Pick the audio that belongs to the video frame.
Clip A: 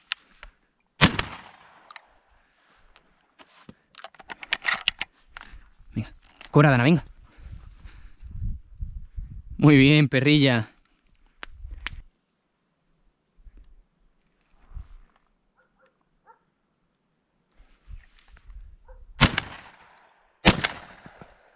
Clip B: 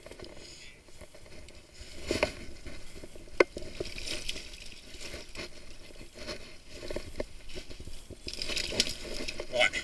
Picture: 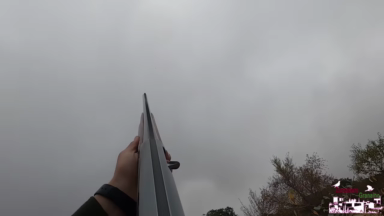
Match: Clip A